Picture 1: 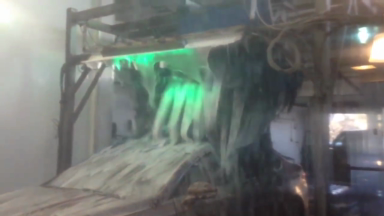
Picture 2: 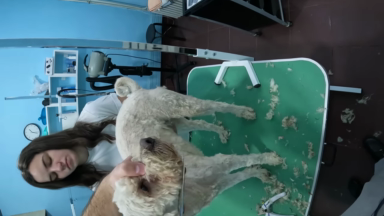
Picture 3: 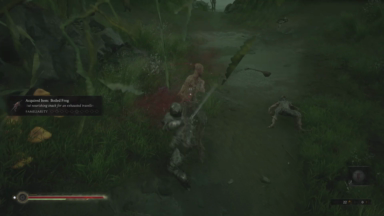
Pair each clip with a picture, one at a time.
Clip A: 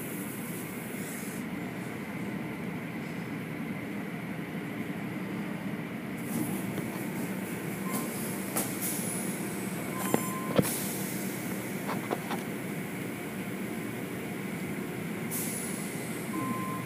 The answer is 1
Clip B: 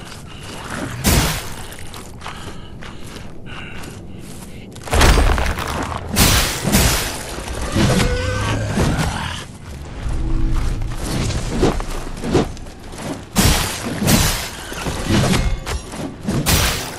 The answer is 3